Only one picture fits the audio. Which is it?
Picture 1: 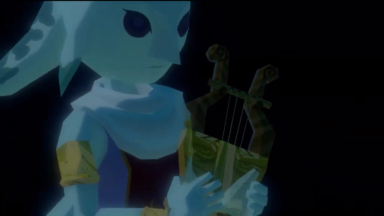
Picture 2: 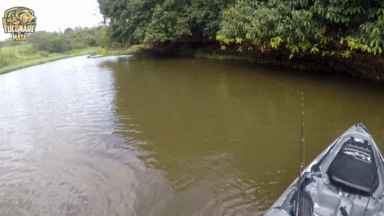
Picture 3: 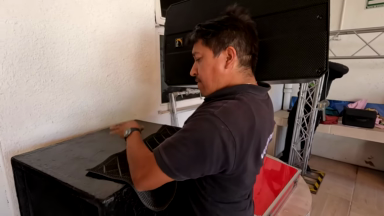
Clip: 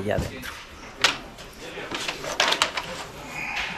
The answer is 3